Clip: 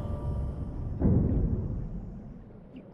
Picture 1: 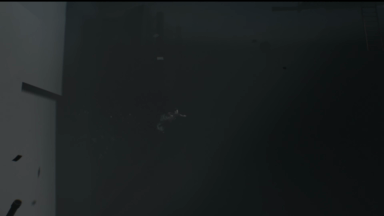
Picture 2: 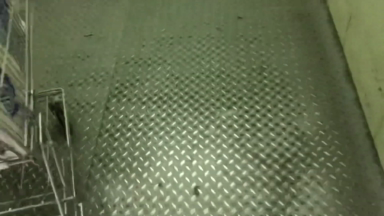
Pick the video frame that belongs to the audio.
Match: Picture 1